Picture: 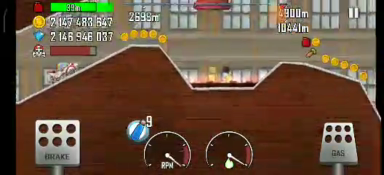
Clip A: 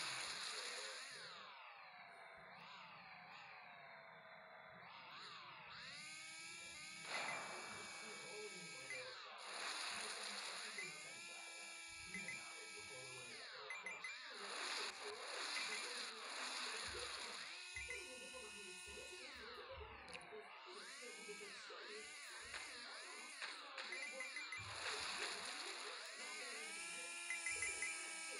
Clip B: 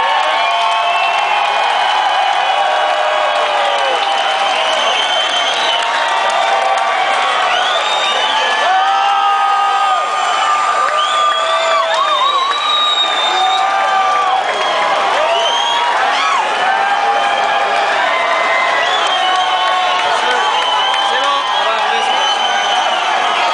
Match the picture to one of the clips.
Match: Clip A